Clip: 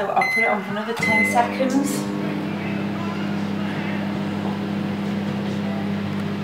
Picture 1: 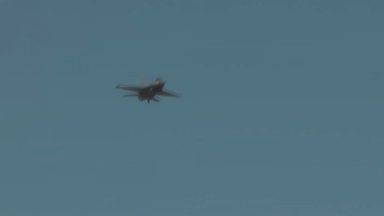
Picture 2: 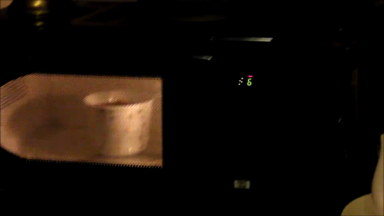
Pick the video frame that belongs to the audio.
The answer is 2